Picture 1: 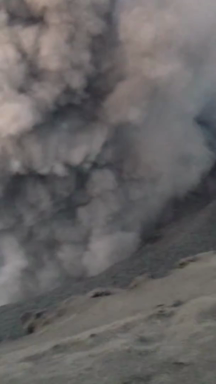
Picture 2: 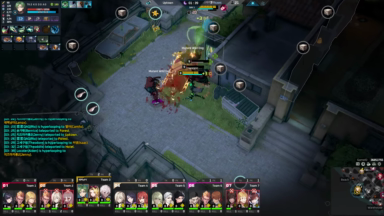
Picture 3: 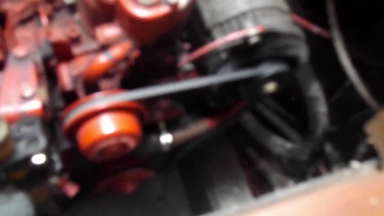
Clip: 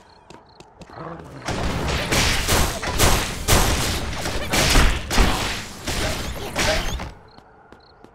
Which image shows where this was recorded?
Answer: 2